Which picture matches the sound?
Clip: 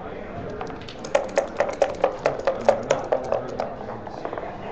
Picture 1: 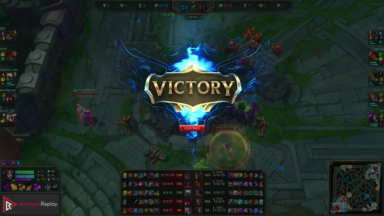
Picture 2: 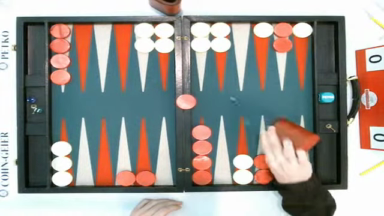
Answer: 2